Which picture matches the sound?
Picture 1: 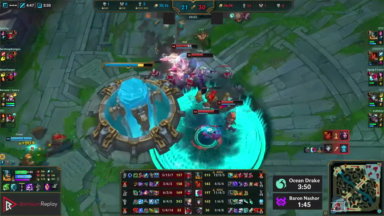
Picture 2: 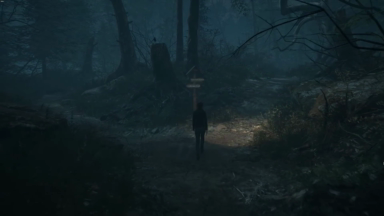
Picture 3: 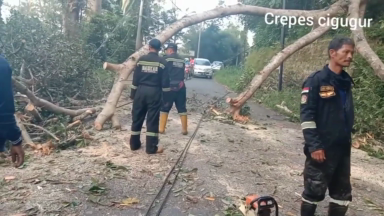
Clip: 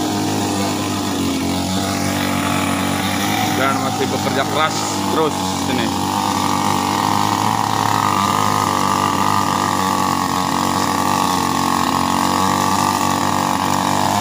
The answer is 3